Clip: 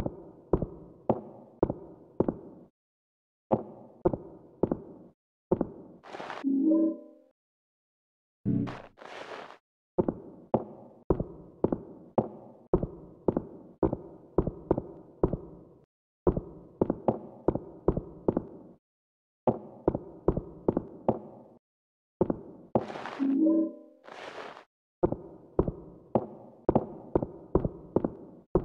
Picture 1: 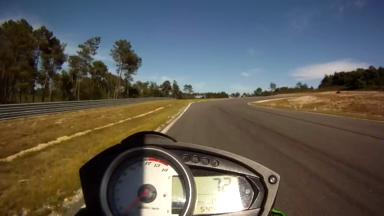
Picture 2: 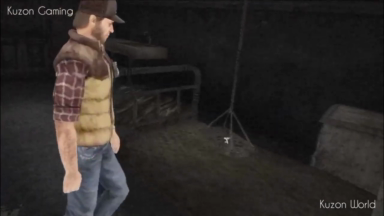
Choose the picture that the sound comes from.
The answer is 2